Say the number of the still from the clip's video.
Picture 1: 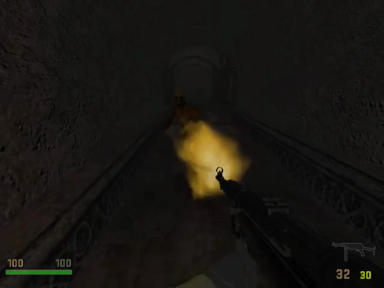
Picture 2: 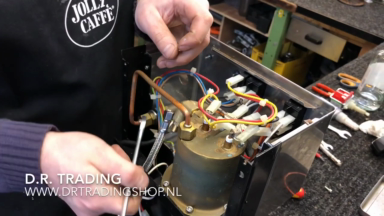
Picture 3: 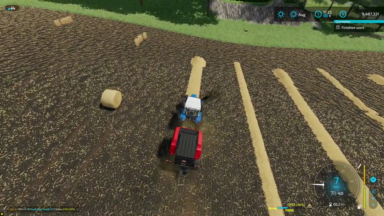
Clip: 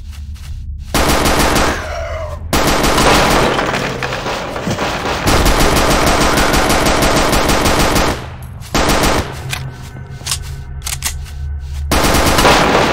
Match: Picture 1